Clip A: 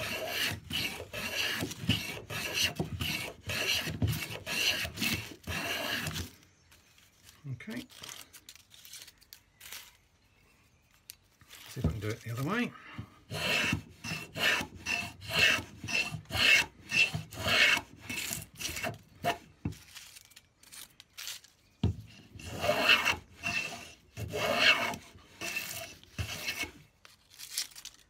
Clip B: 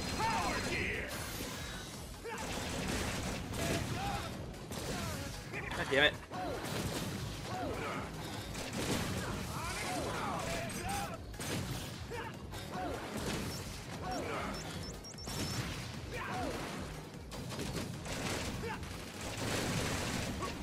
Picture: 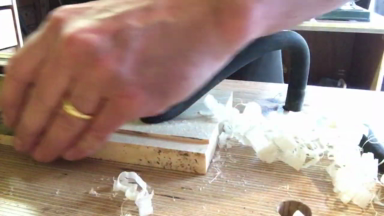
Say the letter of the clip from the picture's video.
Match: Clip A